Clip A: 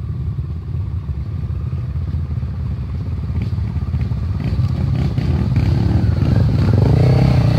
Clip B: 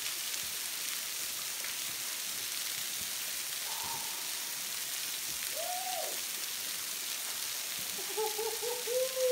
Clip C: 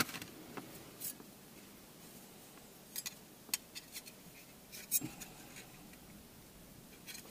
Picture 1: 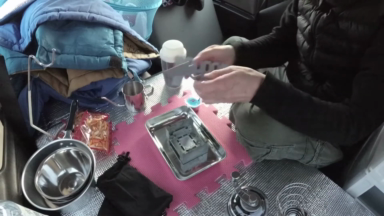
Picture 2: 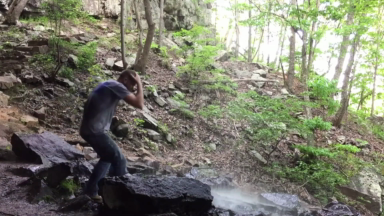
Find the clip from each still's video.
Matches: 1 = C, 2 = B